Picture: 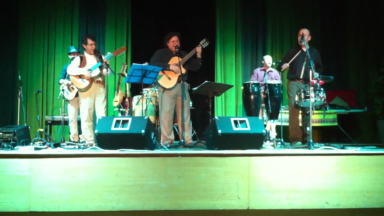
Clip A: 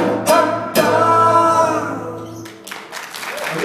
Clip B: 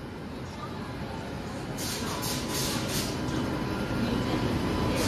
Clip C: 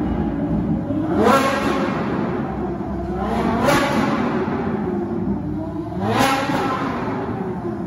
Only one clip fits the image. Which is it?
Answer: A